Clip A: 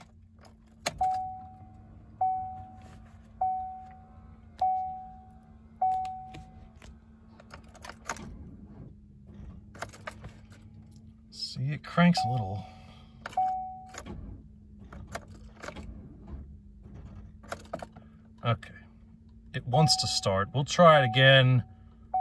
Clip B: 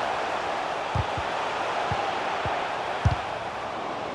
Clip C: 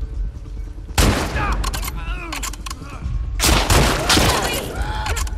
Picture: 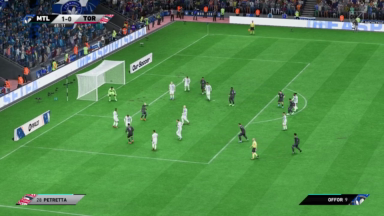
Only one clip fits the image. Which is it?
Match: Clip B